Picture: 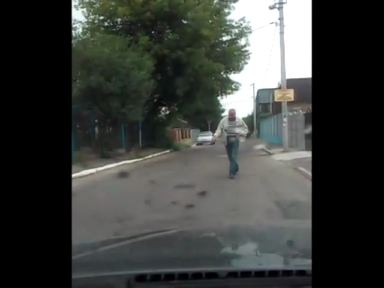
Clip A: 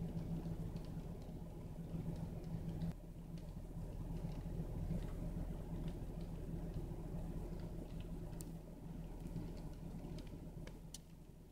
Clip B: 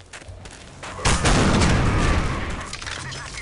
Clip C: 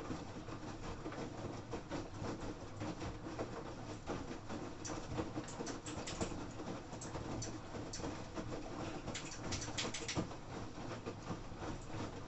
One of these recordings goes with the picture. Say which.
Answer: A